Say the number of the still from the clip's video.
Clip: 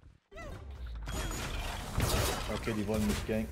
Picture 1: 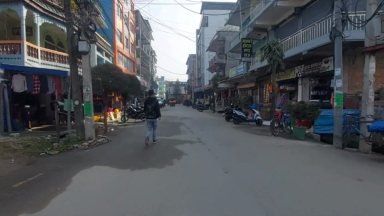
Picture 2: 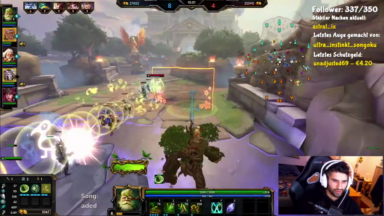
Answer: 2